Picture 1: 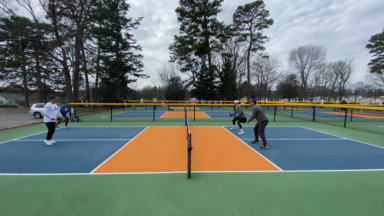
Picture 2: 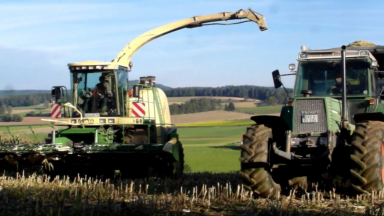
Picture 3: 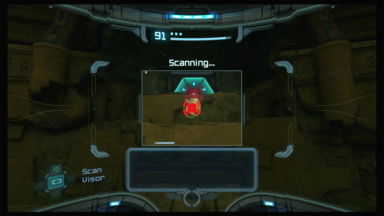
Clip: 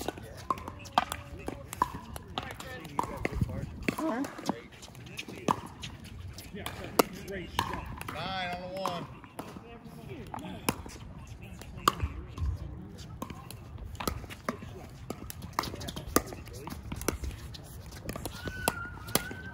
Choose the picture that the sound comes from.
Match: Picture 1